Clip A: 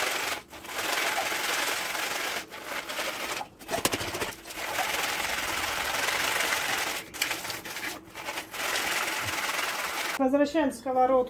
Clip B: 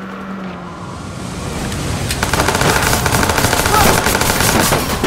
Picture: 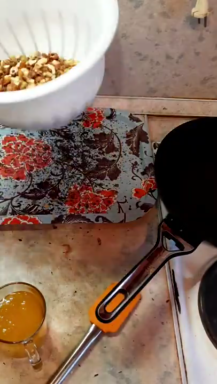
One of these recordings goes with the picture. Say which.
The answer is A